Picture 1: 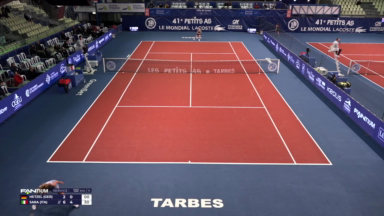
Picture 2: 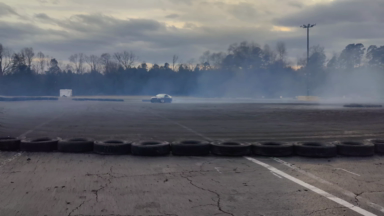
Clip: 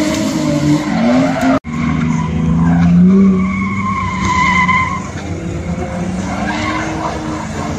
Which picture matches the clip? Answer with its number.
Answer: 2